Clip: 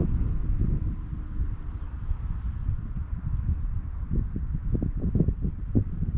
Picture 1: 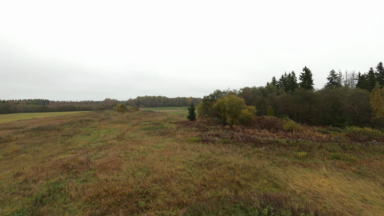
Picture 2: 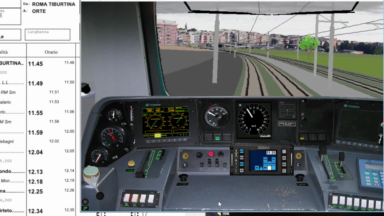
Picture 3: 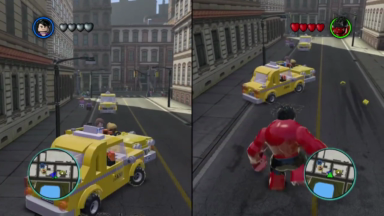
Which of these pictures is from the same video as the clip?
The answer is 1